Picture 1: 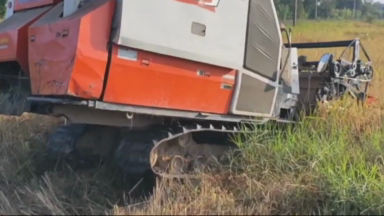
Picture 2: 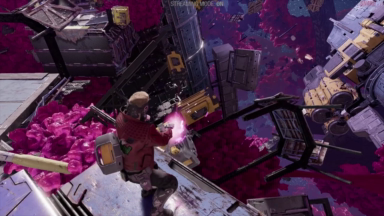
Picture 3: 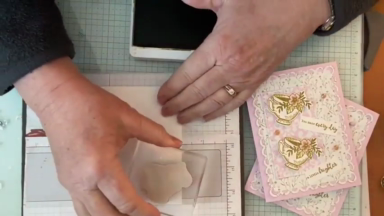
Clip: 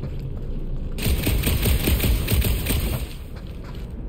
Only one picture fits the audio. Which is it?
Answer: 2